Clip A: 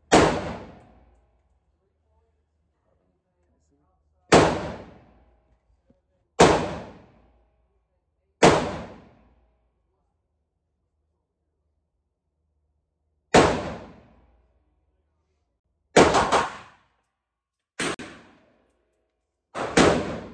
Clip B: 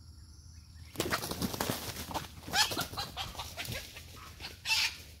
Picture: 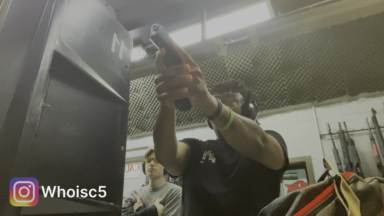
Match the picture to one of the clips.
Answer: A